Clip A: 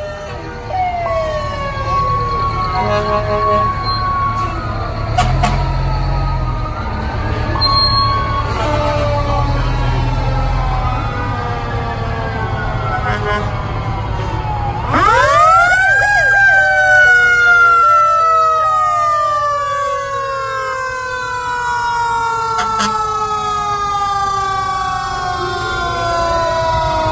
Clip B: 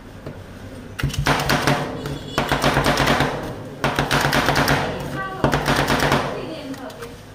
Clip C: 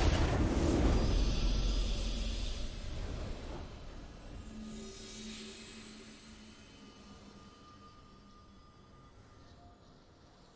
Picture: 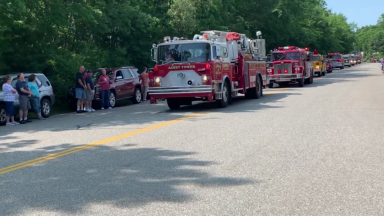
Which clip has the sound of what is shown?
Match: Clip A